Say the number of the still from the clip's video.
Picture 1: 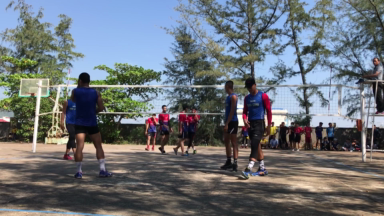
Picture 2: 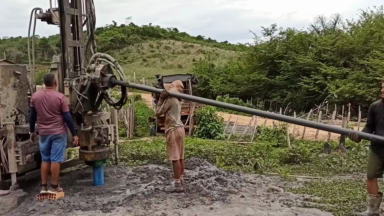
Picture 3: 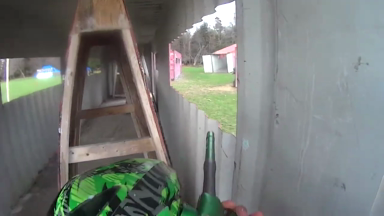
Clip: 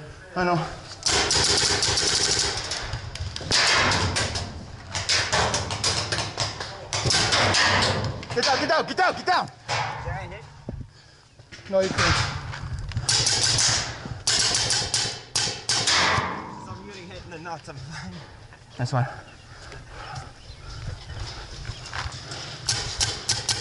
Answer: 3